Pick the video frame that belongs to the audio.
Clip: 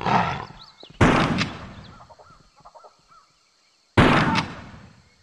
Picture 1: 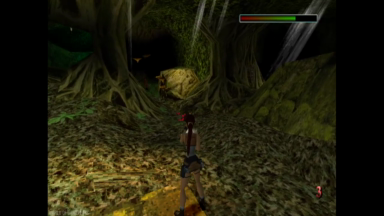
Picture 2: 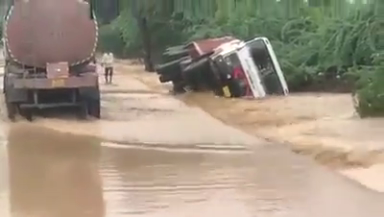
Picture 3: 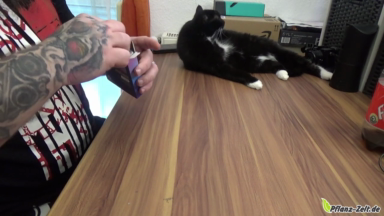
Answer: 1